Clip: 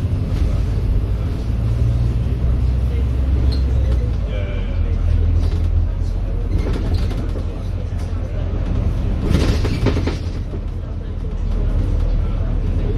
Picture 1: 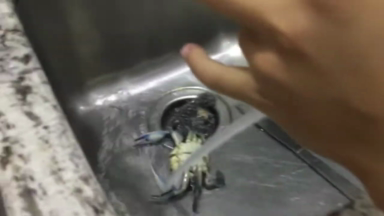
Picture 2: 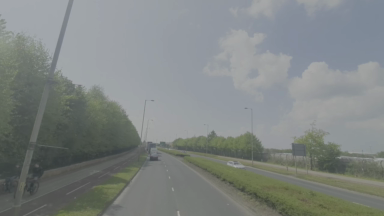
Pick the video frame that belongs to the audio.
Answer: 2